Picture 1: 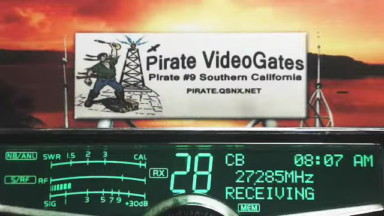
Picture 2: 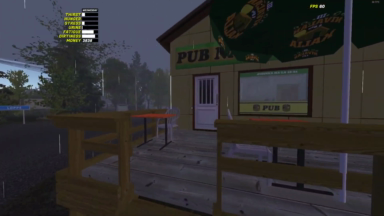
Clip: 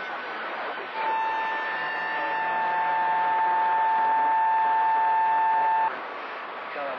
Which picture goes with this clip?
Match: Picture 1